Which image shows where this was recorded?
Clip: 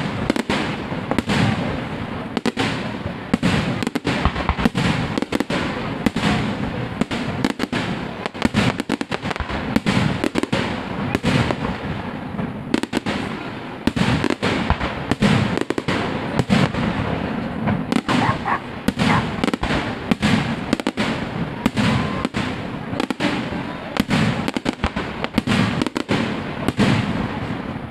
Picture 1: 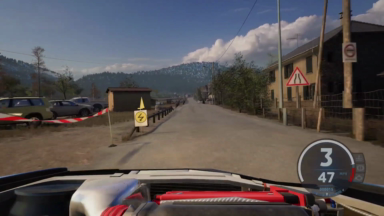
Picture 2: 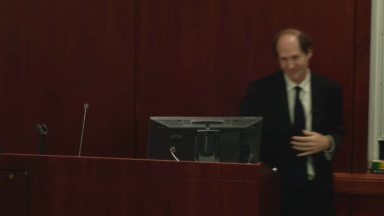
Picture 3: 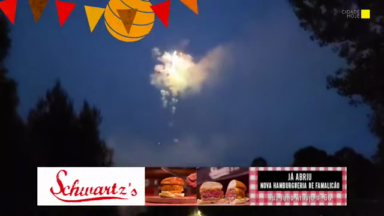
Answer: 3